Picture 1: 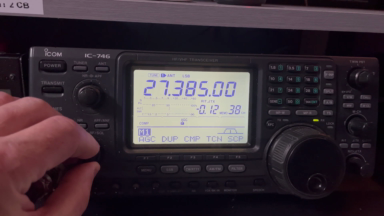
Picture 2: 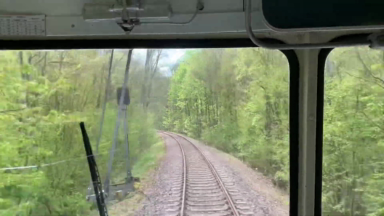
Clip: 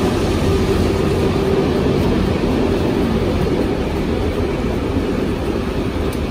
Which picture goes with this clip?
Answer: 2